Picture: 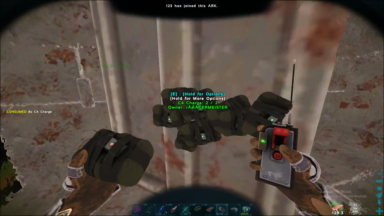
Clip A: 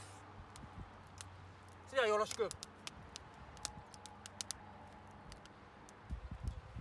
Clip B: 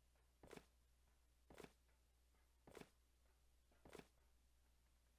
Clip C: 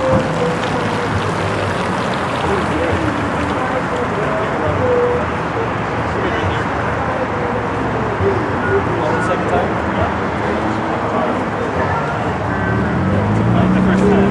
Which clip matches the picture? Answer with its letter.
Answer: B